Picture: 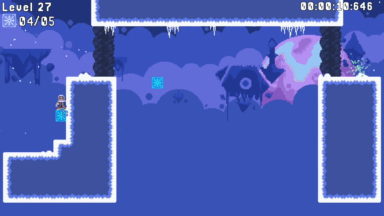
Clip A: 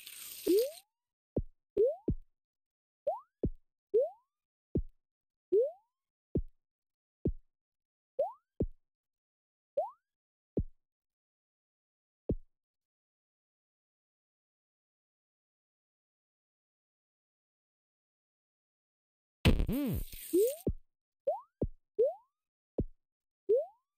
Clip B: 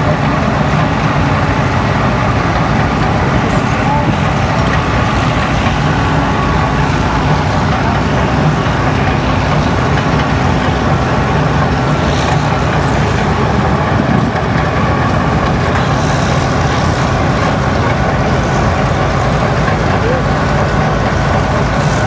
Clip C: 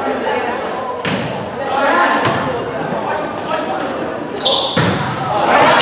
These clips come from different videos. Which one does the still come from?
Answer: A